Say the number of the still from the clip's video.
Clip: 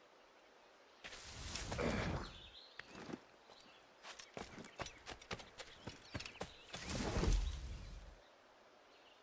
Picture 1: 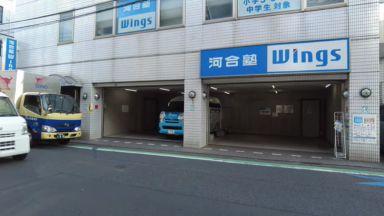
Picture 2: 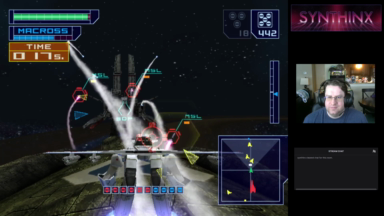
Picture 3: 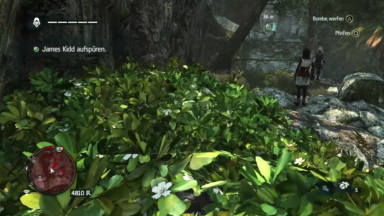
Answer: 3